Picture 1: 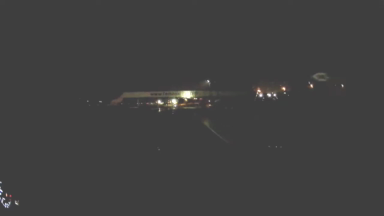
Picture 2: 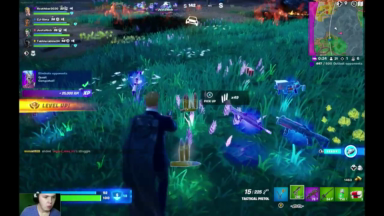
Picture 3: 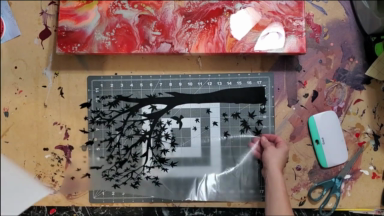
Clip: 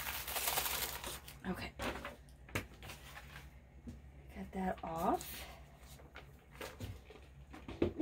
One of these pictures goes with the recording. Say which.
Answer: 3